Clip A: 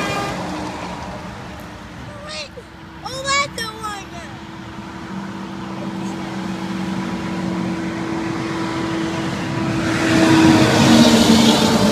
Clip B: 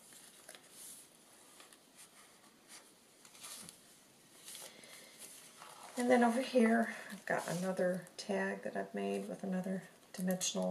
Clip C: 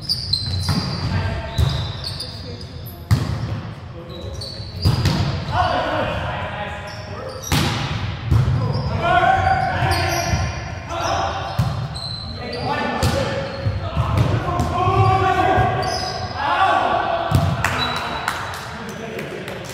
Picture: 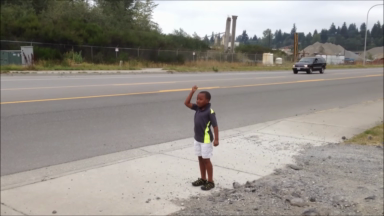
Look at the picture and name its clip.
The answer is A